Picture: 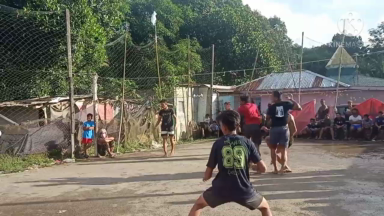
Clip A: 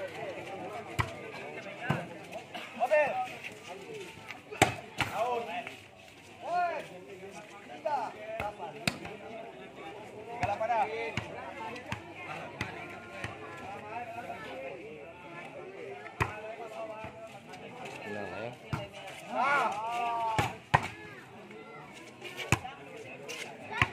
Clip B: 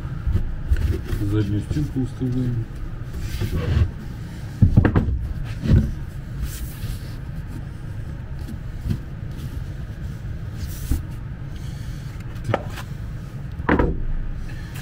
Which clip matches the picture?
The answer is A